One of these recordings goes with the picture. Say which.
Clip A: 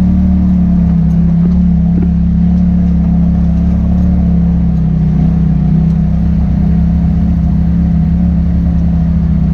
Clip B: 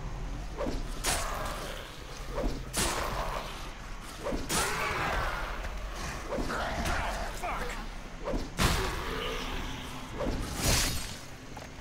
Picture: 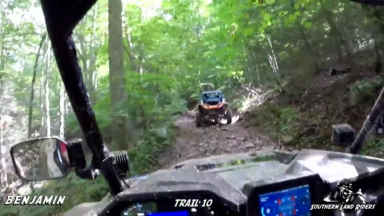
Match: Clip A